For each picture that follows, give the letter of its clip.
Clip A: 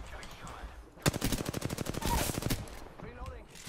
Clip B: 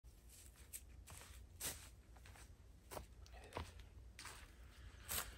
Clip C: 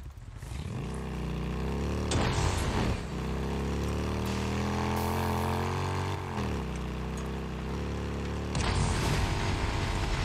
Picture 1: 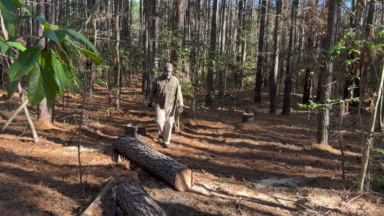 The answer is B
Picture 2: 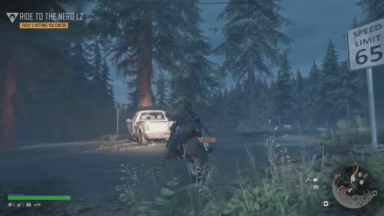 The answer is C